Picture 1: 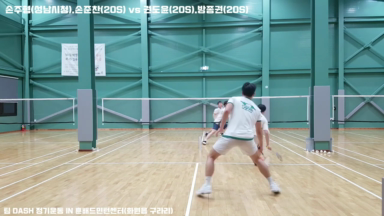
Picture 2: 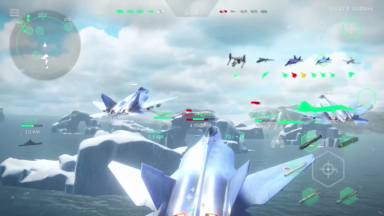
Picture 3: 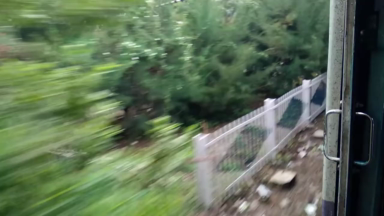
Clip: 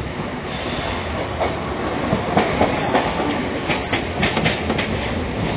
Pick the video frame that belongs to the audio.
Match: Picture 3